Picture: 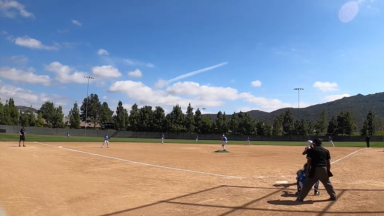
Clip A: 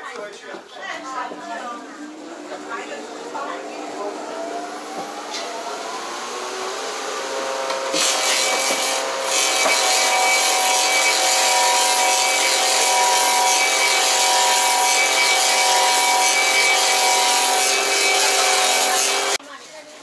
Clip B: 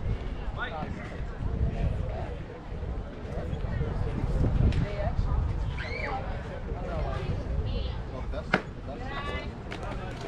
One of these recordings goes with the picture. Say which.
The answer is B